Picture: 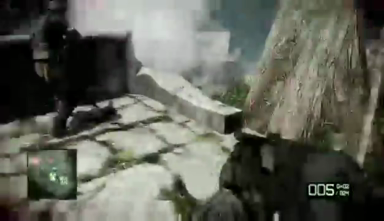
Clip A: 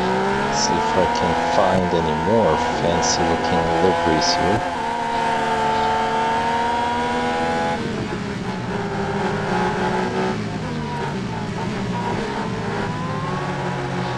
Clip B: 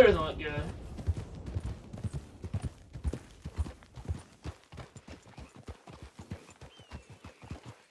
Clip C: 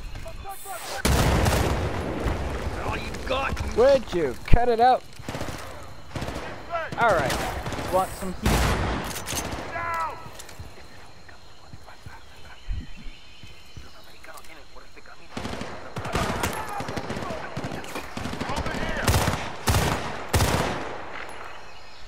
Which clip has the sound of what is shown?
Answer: C